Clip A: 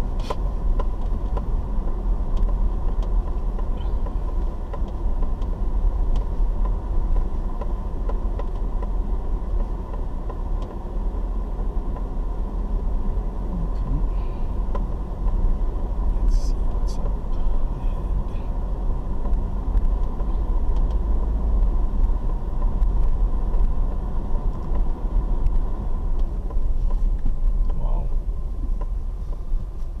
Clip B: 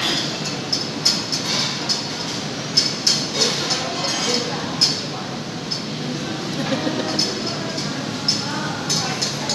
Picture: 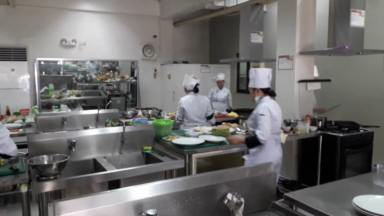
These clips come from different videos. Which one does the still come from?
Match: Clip B